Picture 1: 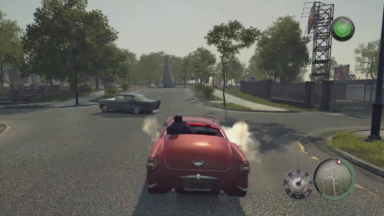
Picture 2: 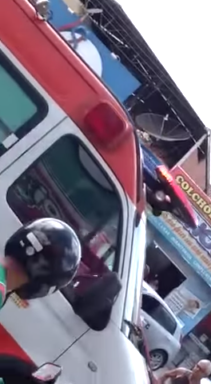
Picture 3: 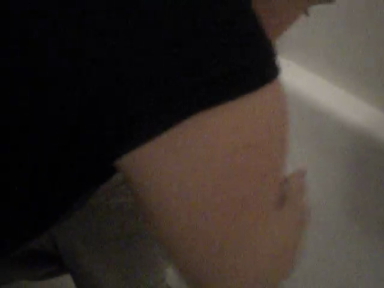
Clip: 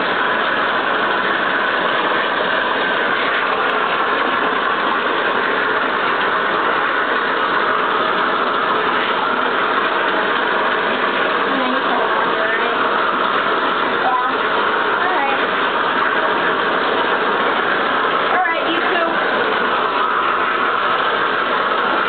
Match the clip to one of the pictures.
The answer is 3